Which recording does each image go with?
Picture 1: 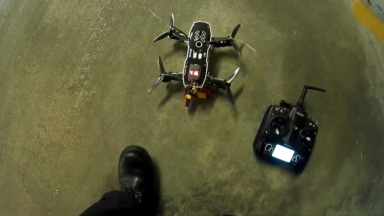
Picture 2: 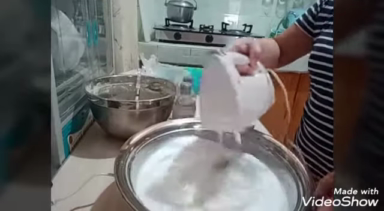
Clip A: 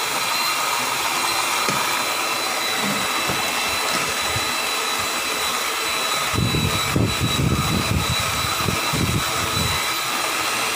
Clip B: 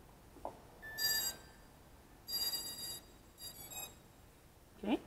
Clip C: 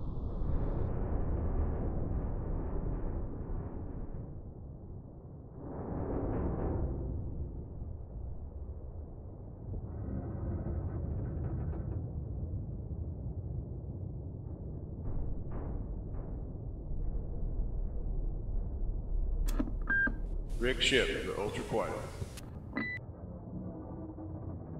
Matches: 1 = B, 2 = A